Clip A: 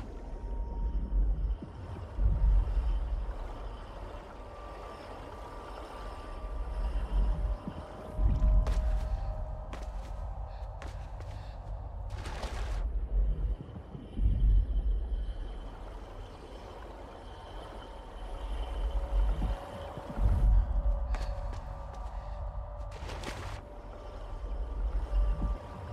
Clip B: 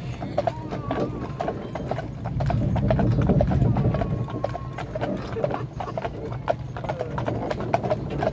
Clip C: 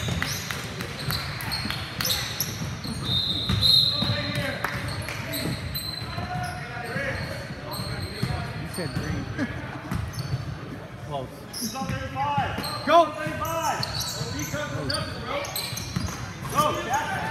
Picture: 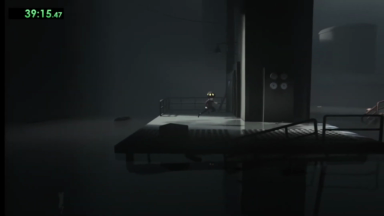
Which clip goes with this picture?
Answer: A